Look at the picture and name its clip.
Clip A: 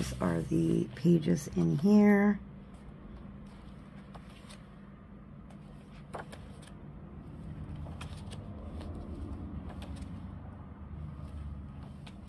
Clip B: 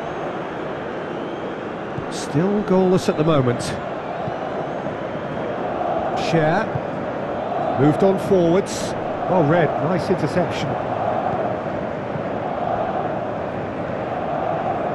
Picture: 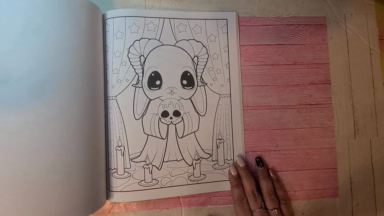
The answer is A